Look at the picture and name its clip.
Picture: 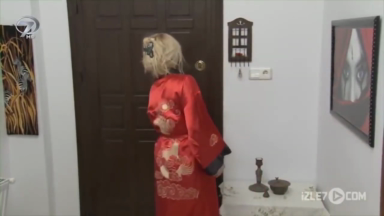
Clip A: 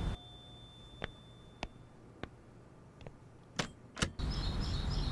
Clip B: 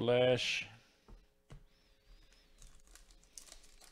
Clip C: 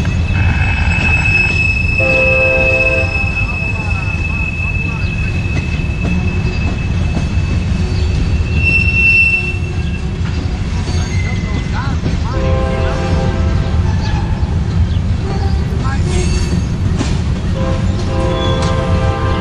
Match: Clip A